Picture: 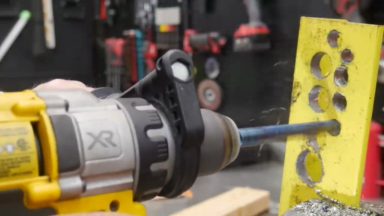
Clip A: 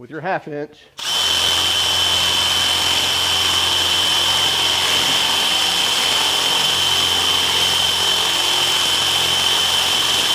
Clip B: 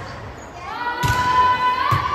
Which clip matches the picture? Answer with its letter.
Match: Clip A